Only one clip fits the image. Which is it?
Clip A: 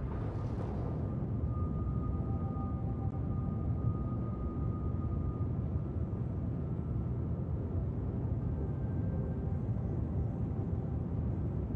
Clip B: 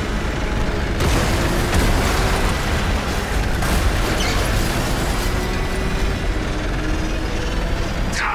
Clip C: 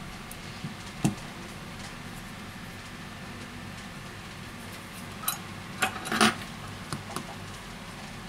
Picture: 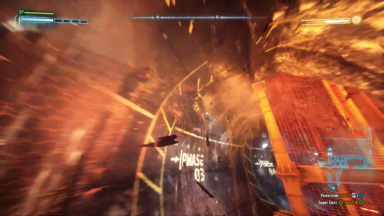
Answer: B